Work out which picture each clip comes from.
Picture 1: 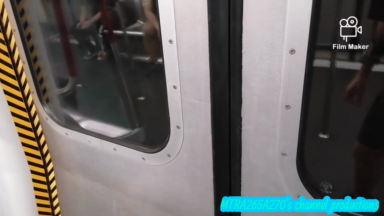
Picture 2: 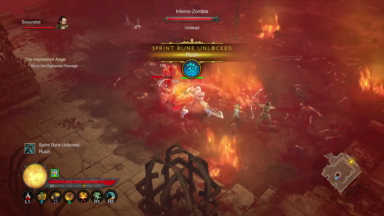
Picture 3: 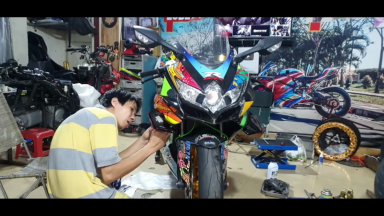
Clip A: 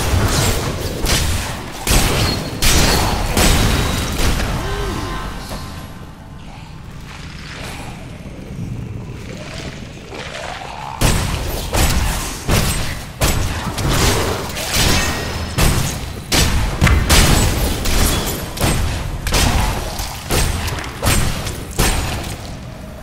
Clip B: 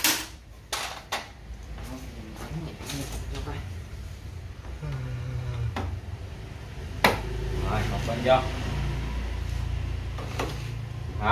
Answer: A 2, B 3